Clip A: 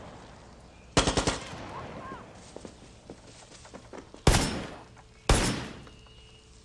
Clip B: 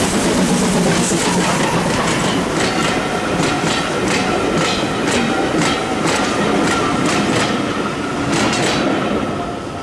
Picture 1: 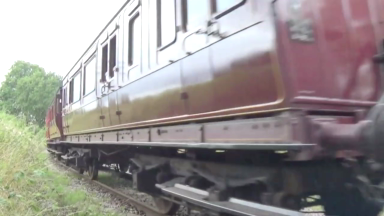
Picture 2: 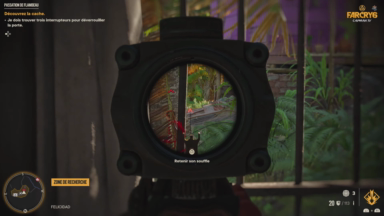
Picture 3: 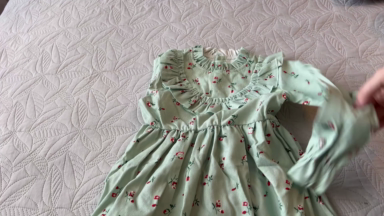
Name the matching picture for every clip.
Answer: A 2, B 1